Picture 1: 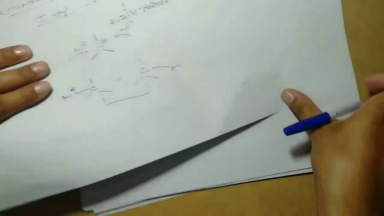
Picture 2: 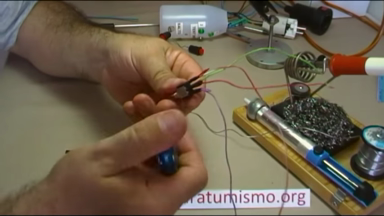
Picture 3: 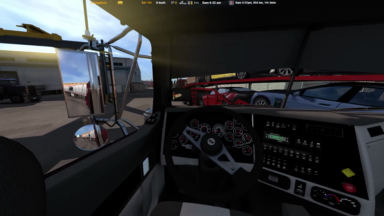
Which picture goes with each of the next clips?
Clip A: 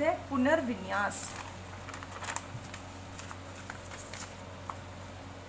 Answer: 1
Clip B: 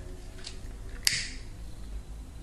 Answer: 2